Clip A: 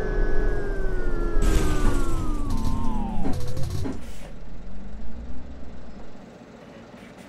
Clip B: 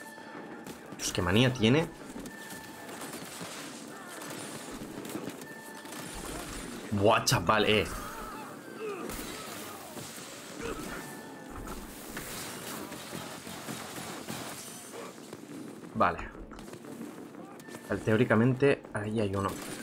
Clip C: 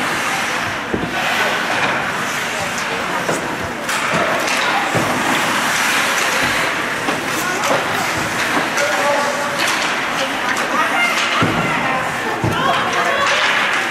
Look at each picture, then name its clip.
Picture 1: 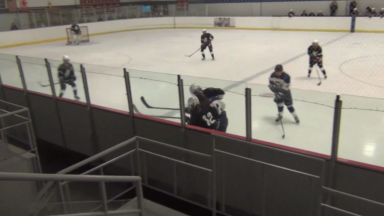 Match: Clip C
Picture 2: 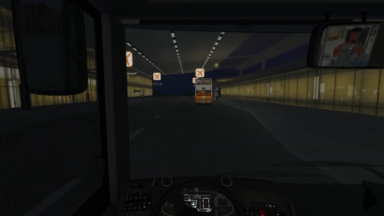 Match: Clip A